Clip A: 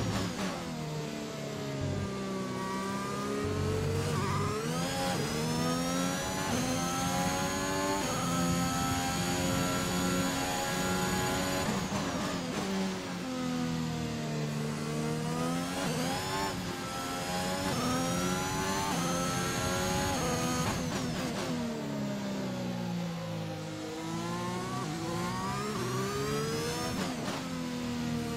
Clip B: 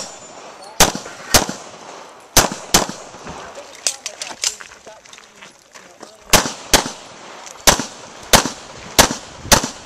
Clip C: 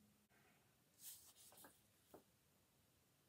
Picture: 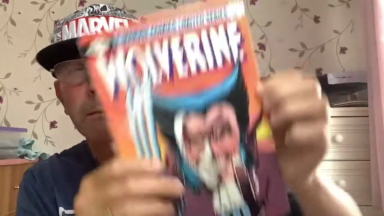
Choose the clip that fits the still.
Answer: C